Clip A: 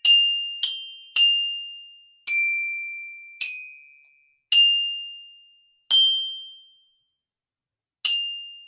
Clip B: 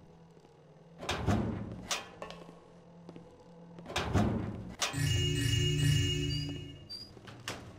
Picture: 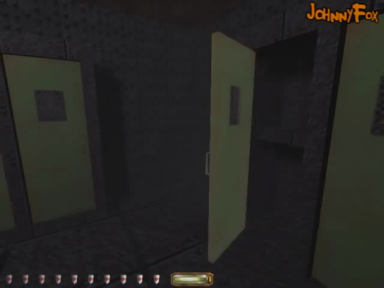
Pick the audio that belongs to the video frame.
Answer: B